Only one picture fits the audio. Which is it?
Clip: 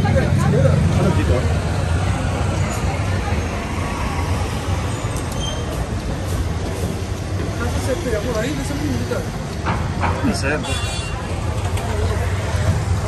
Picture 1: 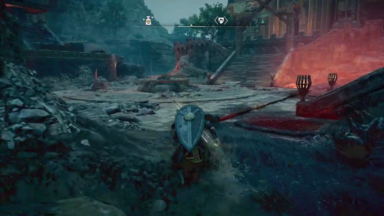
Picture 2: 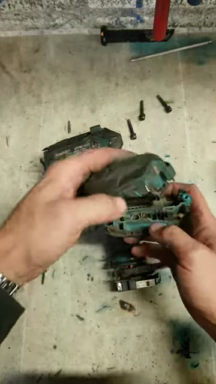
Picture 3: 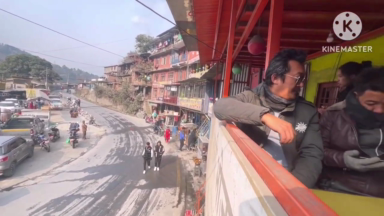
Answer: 3